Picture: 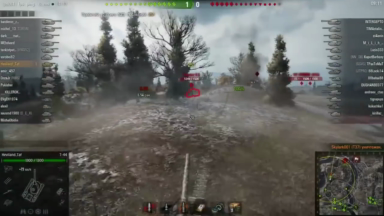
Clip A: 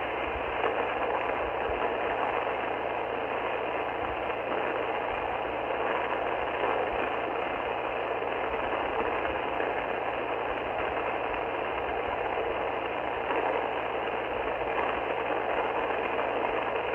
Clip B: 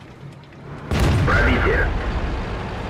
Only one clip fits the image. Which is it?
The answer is B